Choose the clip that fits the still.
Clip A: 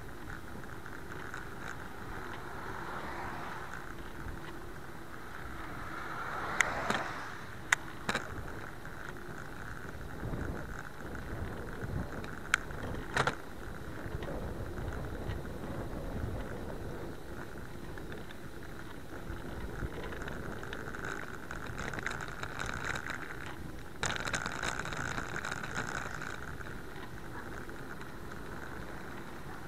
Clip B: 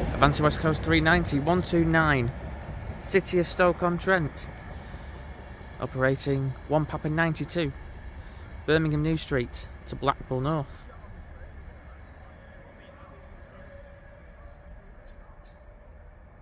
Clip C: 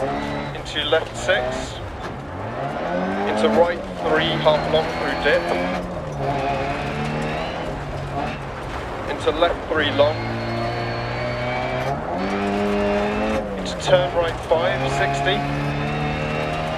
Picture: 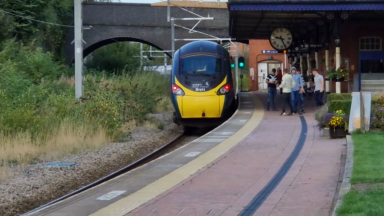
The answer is B